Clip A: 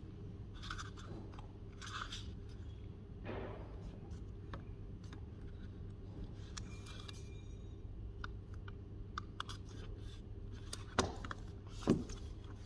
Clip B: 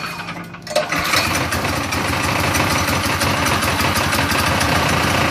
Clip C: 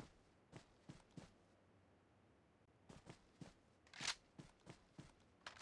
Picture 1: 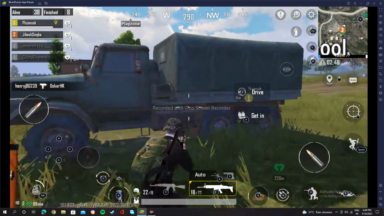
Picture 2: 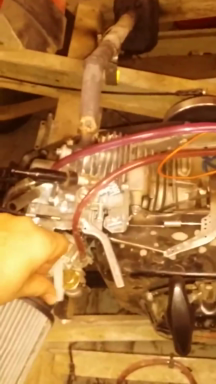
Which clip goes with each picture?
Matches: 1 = C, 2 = B